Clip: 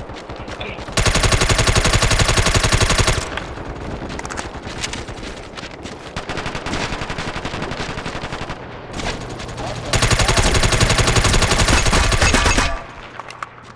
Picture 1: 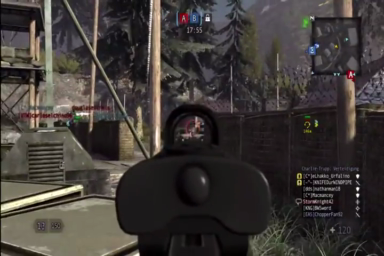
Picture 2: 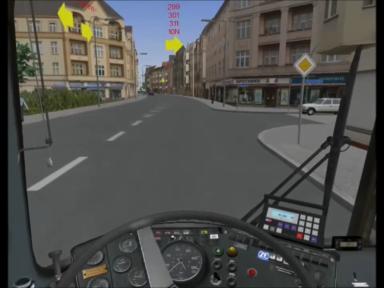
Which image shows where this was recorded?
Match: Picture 1